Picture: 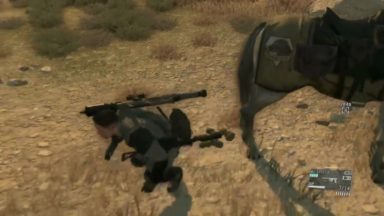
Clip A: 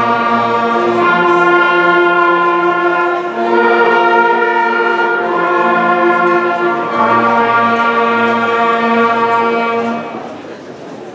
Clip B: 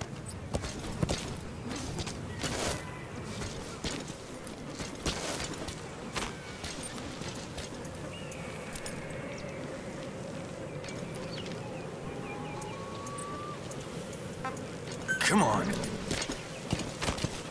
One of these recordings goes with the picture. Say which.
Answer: B